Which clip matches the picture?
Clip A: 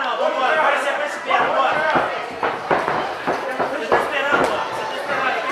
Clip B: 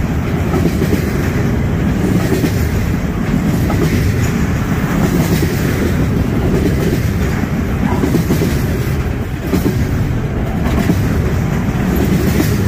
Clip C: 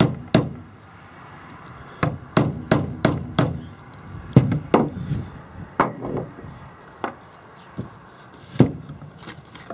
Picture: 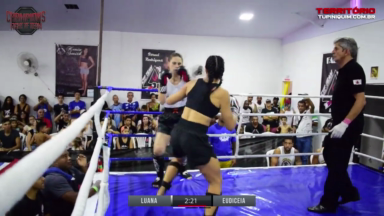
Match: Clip A